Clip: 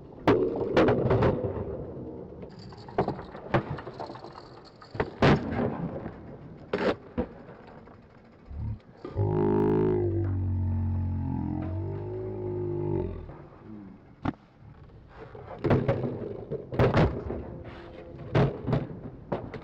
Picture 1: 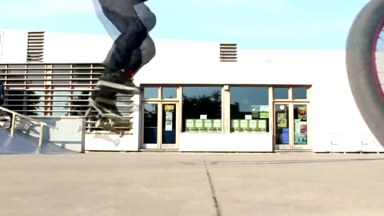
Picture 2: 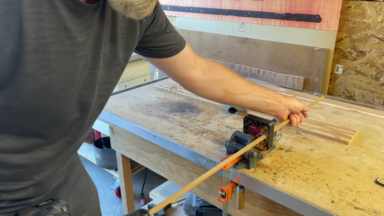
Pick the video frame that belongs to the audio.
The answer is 1